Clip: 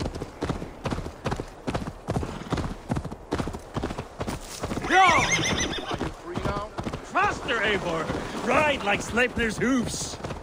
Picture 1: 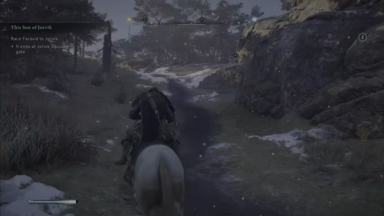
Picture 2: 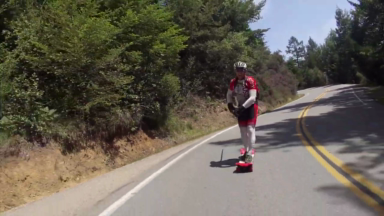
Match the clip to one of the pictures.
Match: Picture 1